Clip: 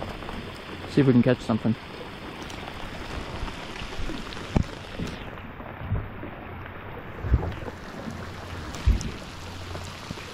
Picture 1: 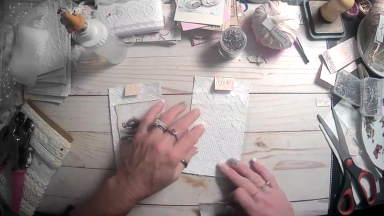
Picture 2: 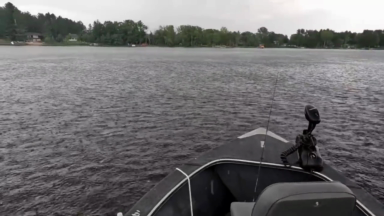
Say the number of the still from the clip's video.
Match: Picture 2